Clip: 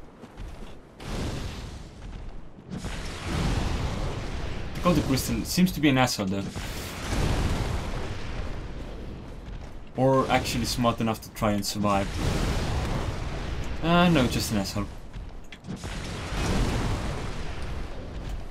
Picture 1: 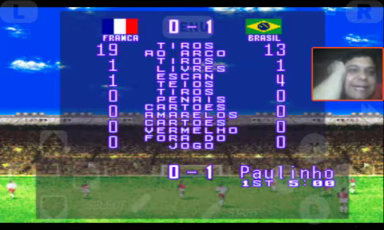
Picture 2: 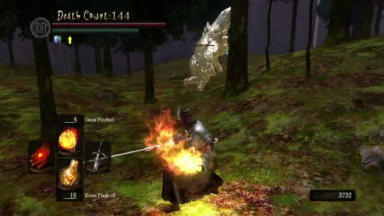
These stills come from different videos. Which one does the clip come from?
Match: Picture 2